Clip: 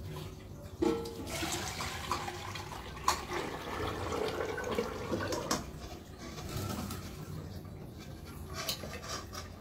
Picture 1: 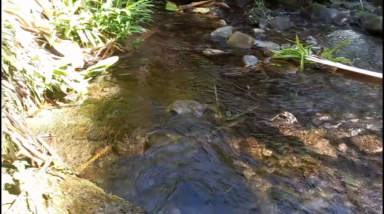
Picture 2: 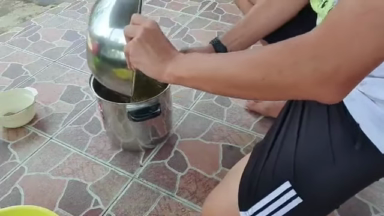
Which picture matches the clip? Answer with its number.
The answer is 2